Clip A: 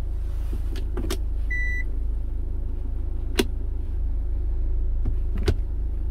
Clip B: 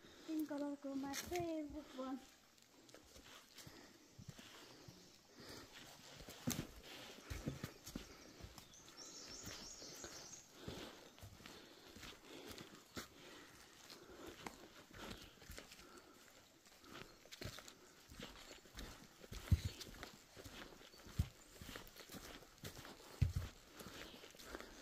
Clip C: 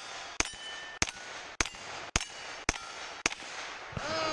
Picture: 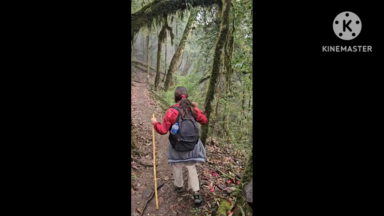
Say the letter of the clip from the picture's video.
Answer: B